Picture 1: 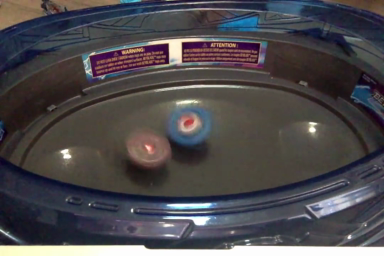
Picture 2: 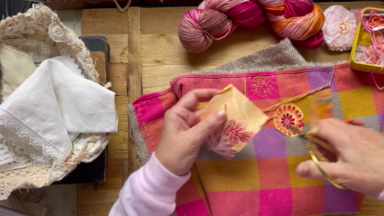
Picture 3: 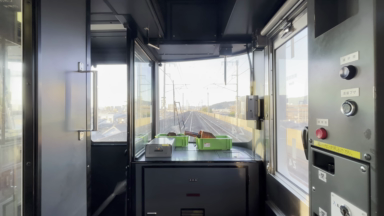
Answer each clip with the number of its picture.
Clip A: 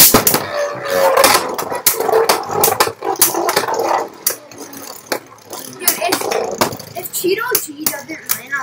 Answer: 1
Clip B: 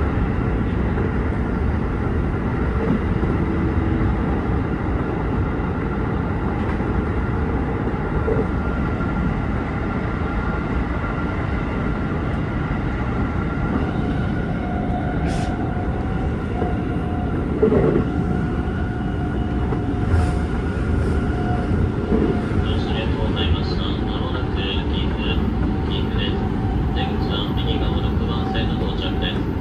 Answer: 3